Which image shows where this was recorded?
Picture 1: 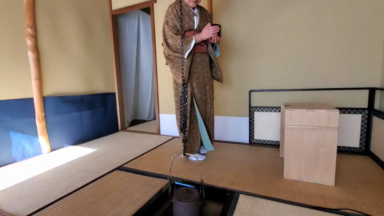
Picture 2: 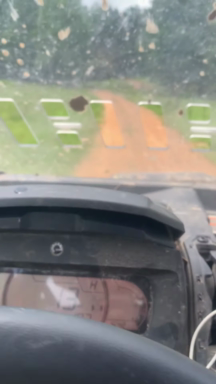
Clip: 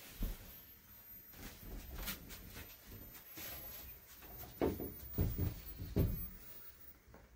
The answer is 1